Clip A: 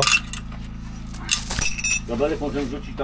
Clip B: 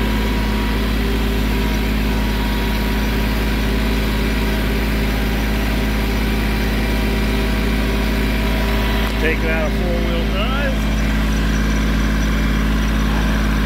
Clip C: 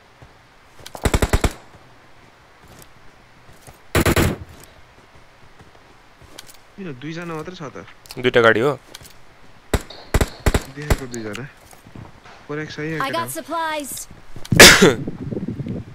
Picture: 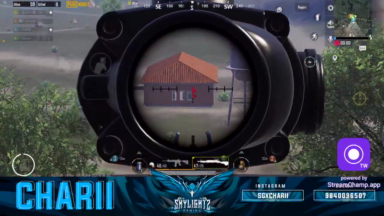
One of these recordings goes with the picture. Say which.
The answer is C